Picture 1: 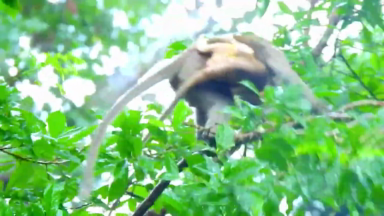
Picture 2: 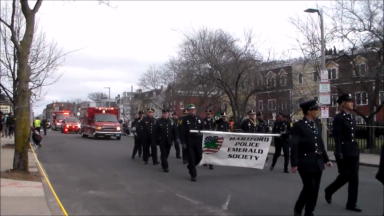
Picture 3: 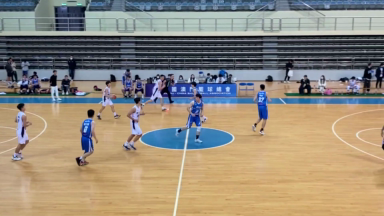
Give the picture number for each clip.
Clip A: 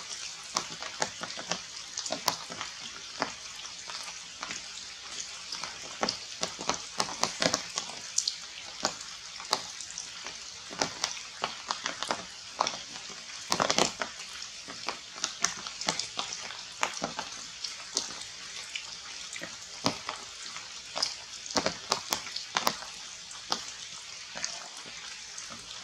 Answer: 1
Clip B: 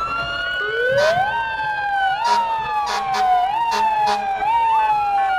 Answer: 2